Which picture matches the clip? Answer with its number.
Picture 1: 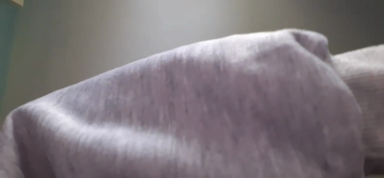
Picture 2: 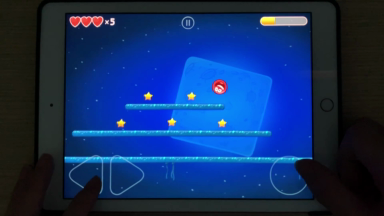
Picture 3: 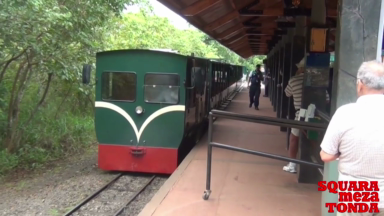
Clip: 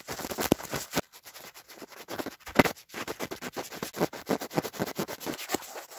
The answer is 1